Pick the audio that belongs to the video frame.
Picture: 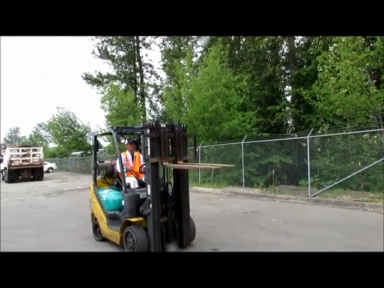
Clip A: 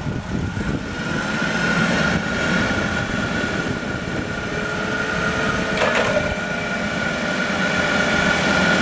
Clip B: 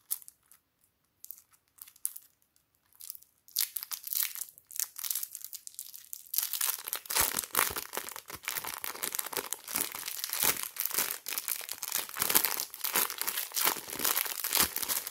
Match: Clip A